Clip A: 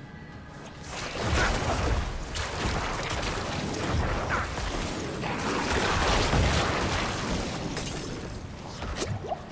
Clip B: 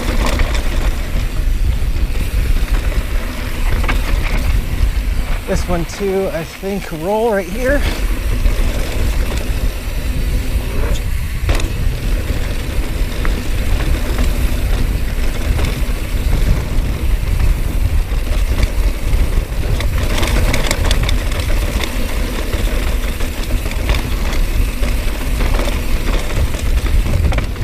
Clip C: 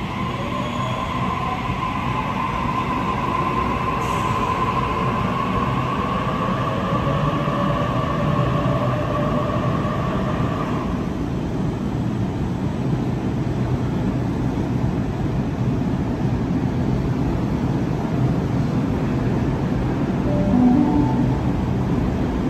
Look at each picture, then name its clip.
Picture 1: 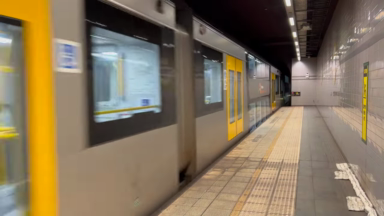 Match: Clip C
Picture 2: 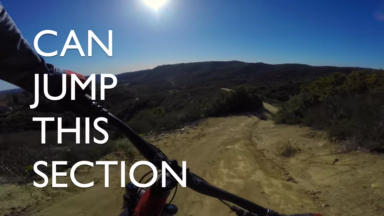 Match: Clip B